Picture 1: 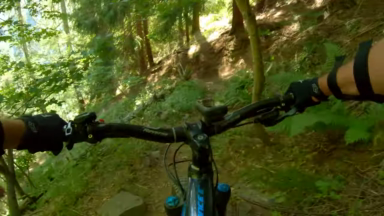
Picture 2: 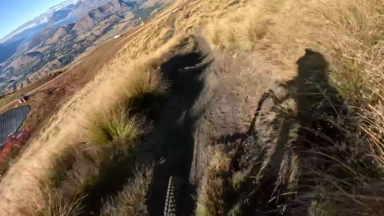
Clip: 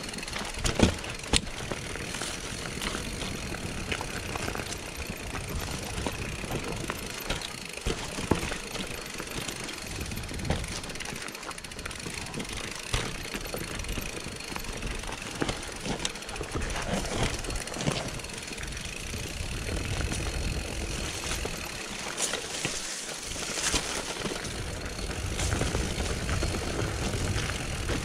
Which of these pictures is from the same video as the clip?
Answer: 1